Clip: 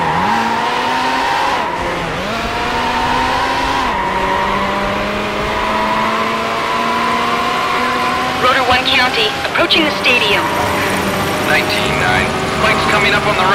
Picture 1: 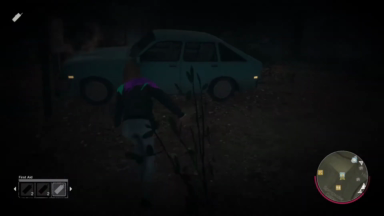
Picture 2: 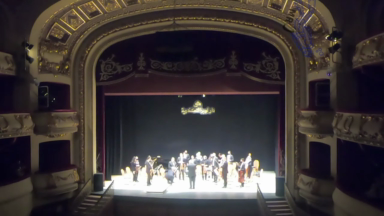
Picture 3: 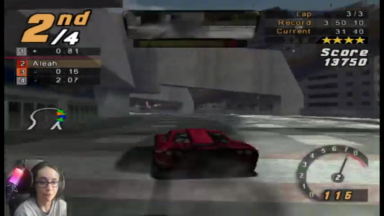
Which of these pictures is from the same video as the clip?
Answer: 3